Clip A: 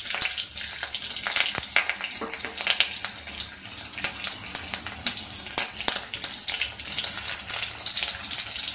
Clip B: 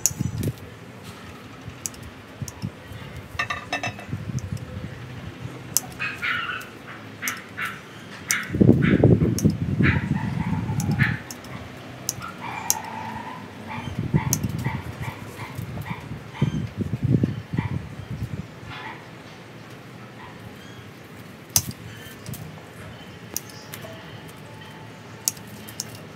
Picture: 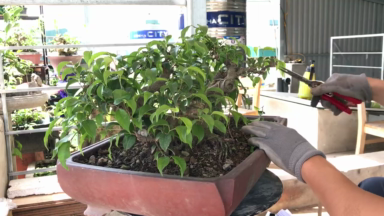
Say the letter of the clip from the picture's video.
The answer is B